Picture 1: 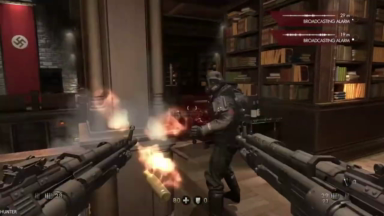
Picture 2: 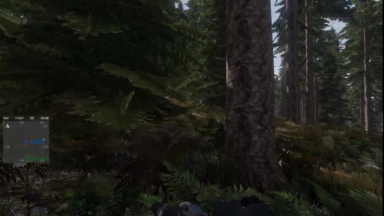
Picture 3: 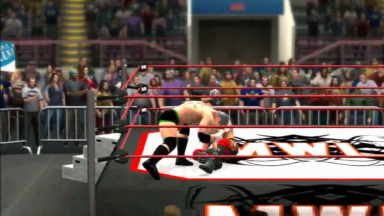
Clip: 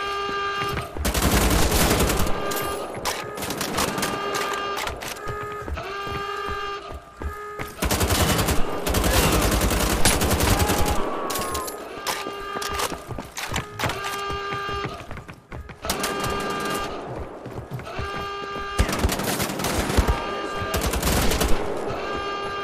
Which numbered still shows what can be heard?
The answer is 1